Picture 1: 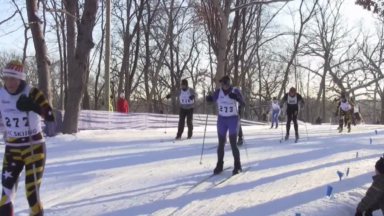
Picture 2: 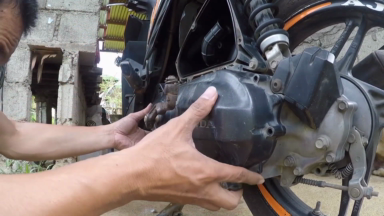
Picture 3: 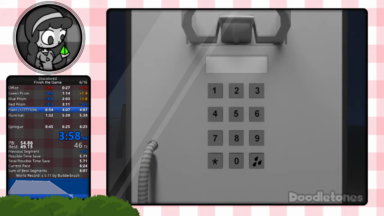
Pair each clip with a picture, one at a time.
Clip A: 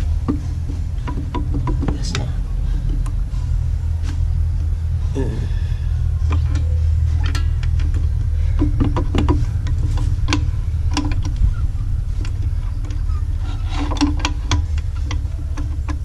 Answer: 2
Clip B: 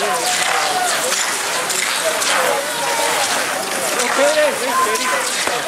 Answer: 1